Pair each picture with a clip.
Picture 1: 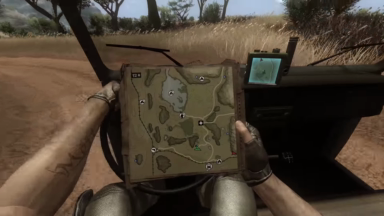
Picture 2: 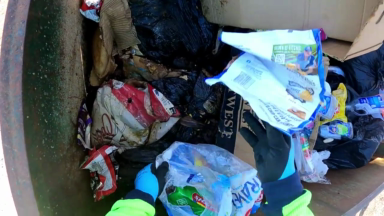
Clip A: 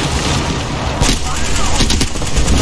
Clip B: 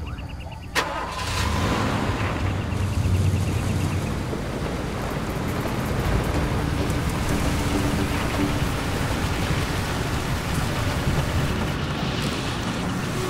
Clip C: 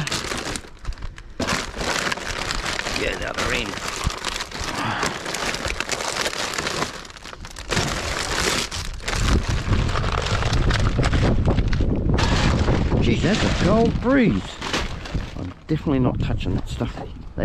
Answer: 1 B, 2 C